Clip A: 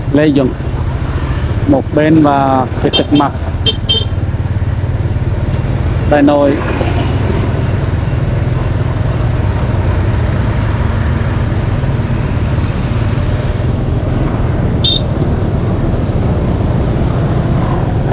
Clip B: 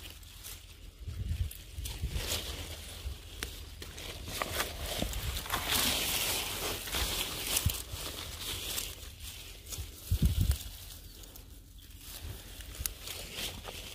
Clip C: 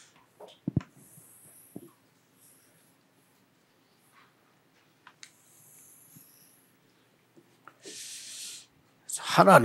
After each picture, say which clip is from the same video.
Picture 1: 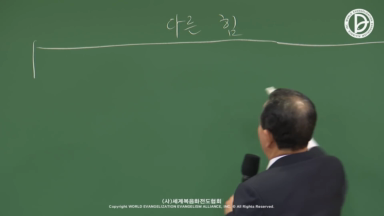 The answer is C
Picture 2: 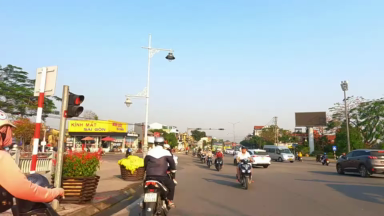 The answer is A